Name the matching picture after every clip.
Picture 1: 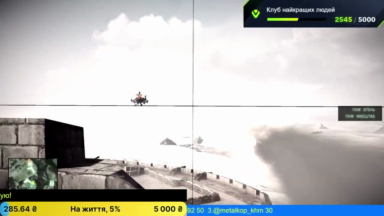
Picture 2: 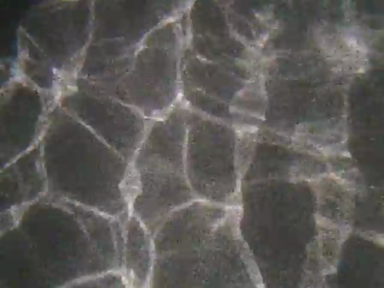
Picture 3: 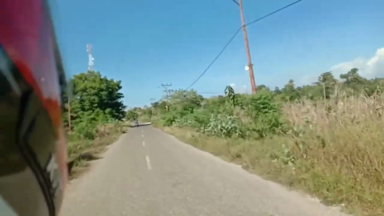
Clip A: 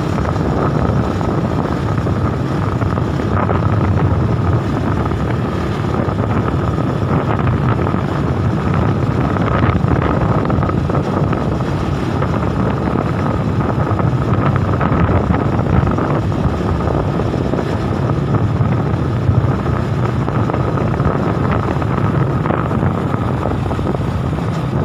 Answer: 3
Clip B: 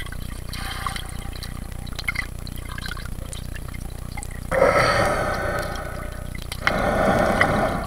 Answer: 2